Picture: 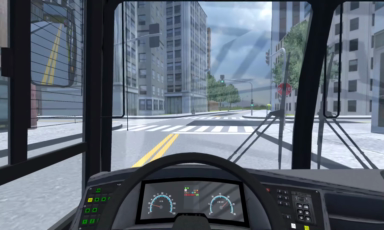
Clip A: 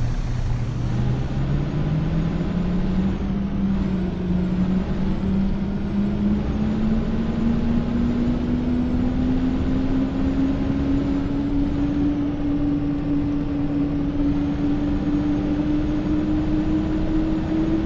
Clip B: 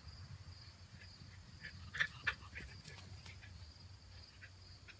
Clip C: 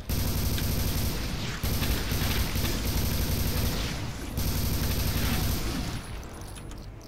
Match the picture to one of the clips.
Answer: A